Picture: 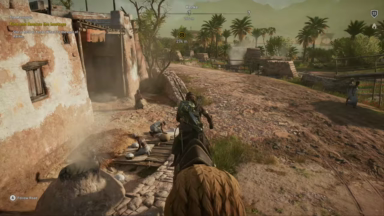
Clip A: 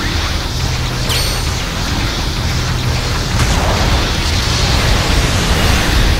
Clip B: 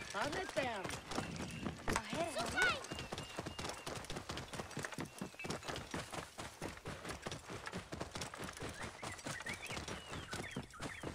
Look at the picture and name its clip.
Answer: B